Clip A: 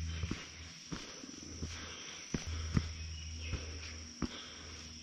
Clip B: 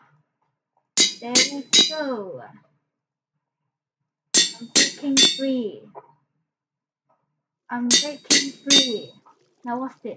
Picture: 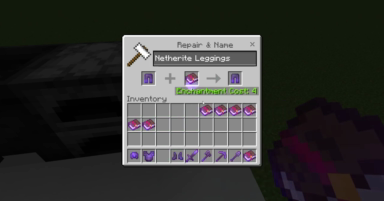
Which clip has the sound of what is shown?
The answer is B